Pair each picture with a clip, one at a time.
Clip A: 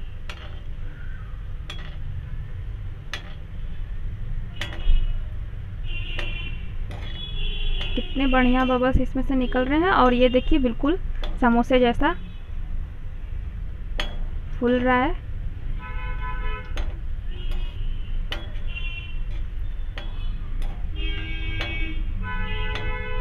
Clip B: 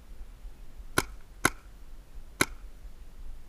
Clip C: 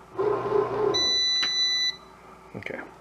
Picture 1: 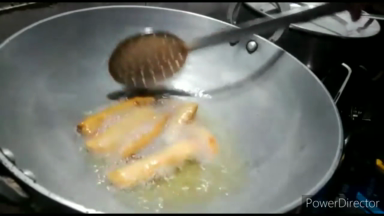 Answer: A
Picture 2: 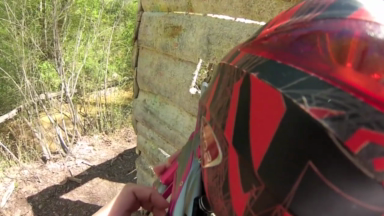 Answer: B